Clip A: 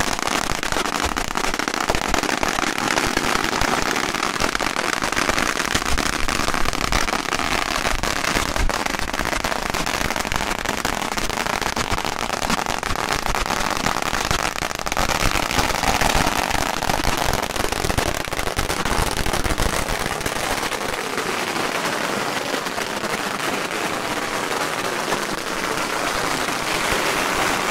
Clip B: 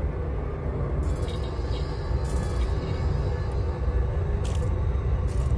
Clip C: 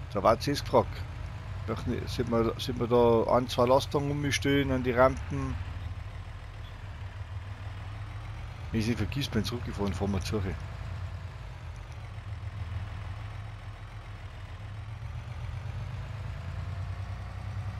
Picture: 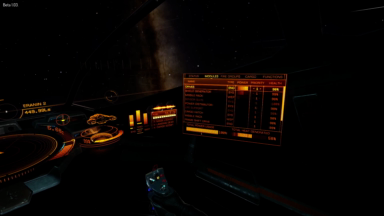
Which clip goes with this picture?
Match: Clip B